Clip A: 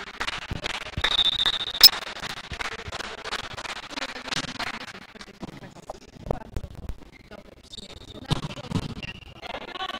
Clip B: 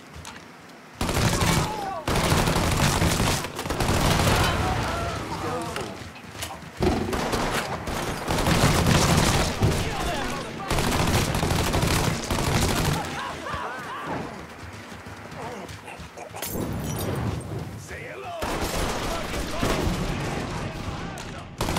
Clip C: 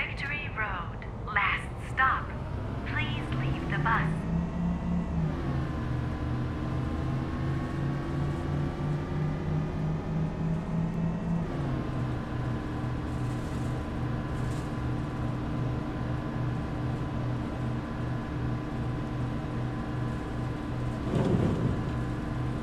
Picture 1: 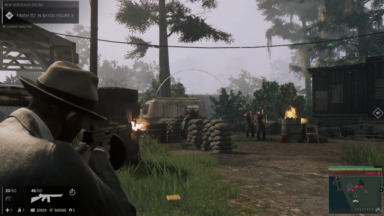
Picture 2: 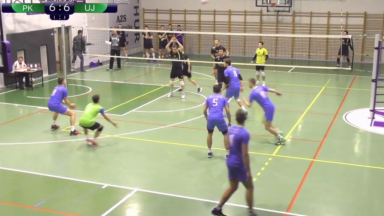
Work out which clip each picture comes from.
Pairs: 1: B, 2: A